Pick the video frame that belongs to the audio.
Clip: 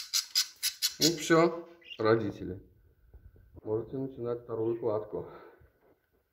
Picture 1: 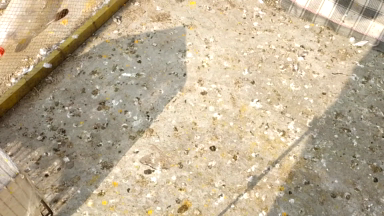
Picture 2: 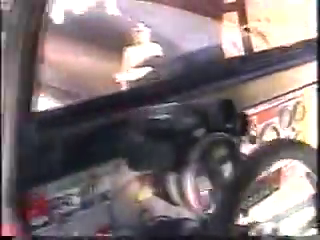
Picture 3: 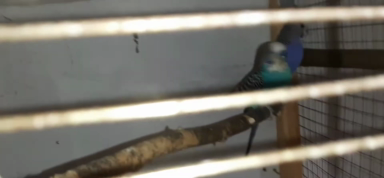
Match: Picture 3